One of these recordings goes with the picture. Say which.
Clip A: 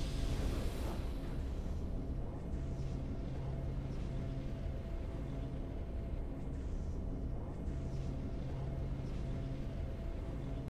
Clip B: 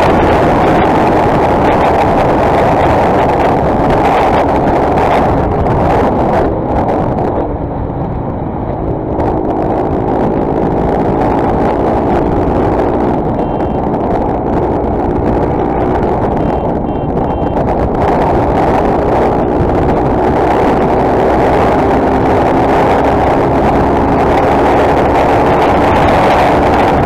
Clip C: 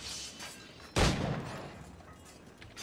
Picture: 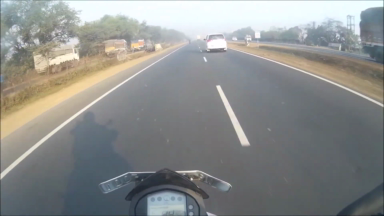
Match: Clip B